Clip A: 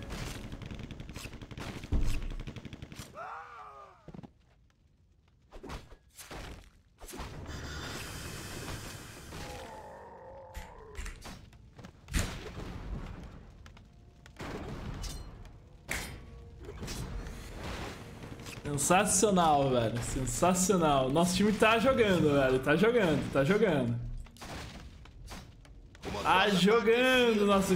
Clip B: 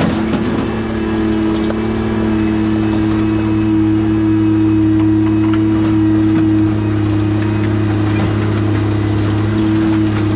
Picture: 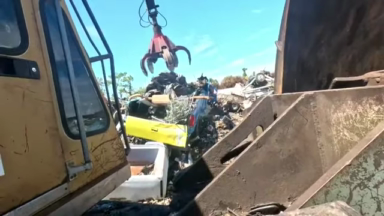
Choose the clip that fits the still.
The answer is B